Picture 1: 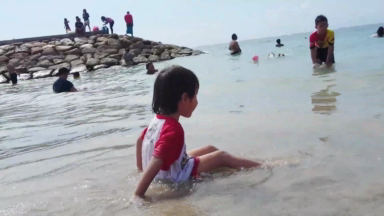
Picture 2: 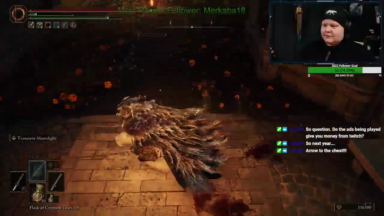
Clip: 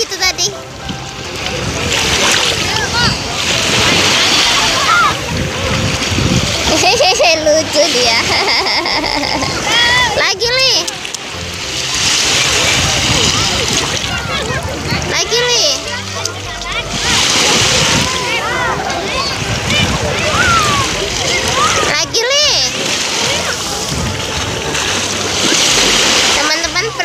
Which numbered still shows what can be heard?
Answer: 1